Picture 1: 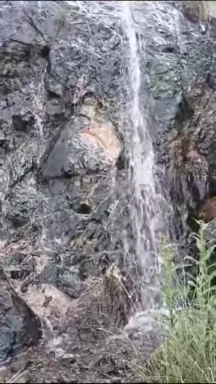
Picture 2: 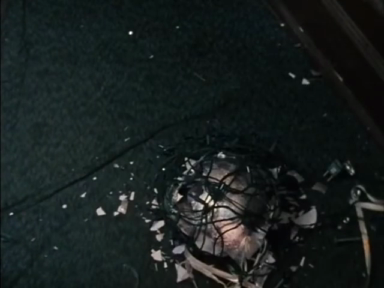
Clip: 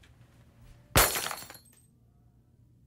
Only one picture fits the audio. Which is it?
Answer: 2